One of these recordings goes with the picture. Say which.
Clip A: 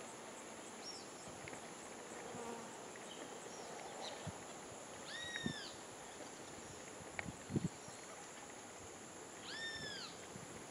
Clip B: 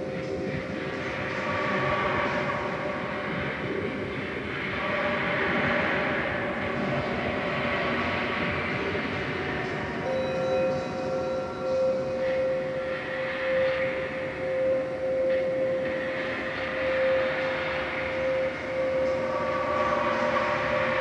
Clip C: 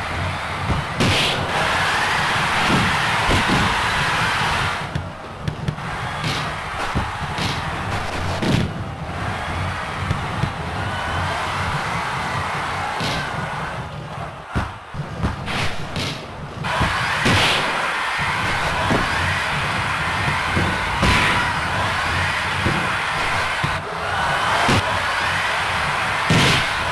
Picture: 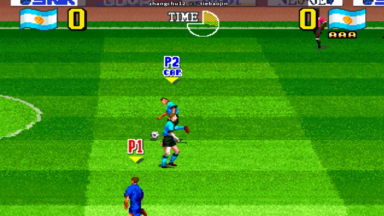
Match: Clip C